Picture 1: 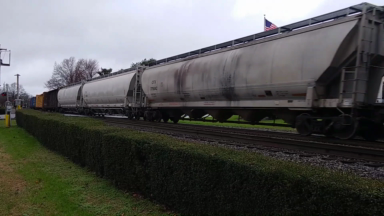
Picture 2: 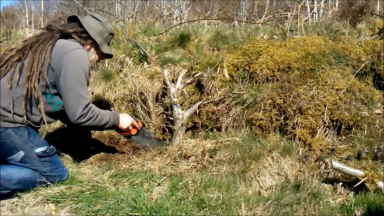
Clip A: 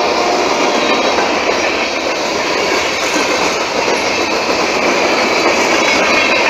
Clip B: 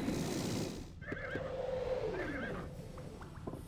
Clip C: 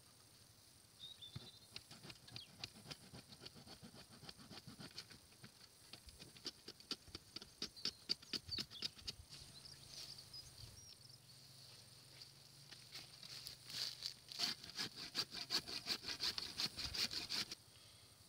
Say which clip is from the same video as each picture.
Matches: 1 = A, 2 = C